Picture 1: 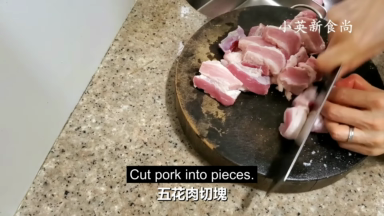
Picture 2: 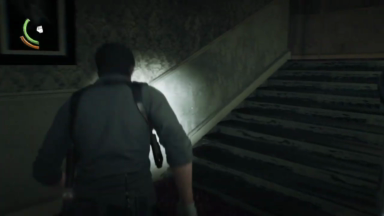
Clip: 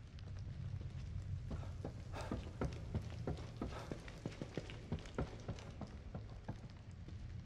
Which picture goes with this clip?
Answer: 2